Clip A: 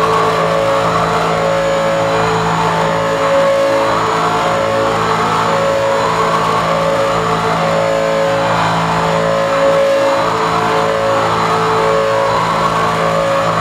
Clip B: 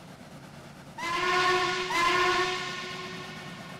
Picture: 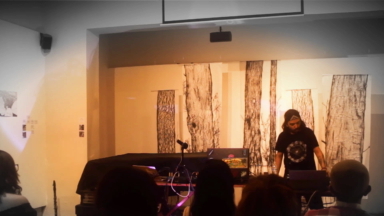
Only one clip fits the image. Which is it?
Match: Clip A